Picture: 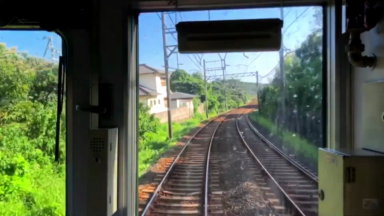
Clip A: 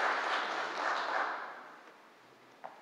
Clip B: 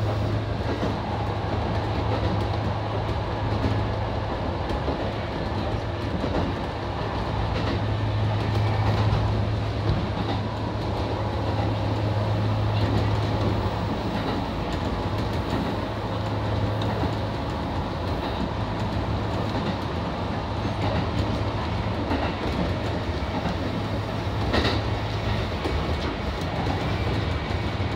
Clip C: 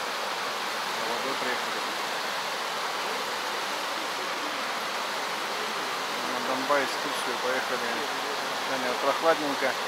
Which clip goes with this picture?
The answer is B